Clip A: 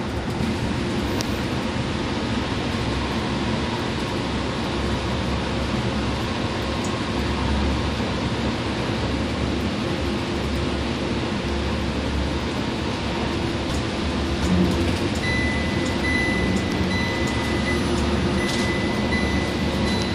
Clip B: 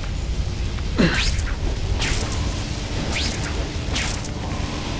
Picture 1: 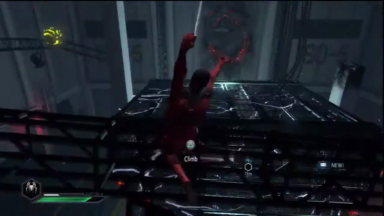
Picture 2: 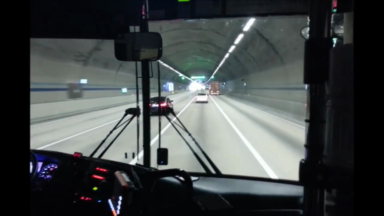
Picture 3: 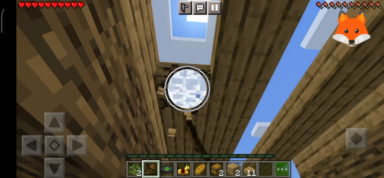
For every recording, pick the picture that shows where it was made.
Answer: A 2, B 1